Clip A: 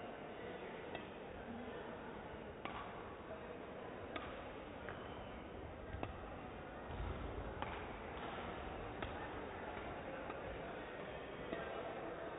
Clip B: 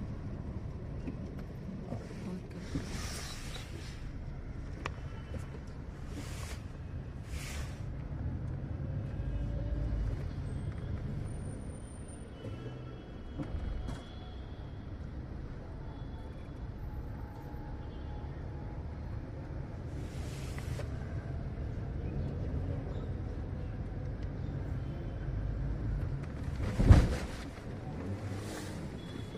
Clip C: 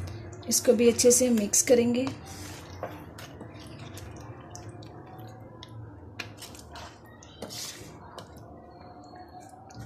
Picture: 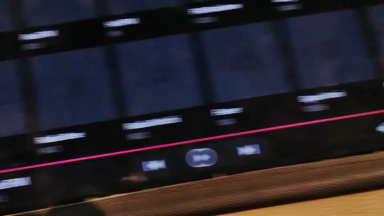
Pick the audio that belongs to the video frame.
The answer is B